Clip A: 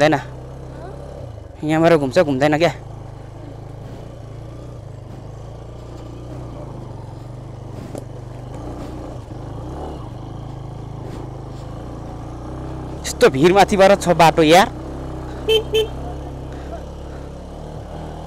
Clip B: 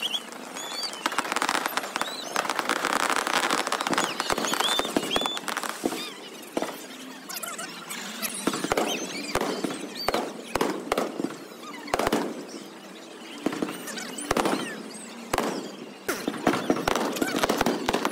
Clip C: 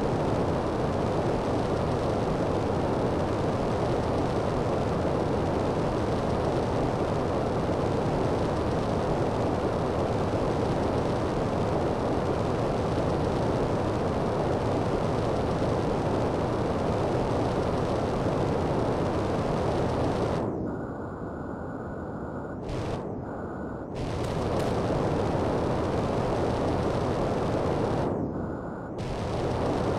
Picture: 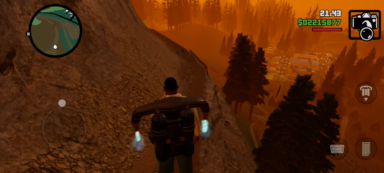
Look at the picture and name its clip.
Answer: C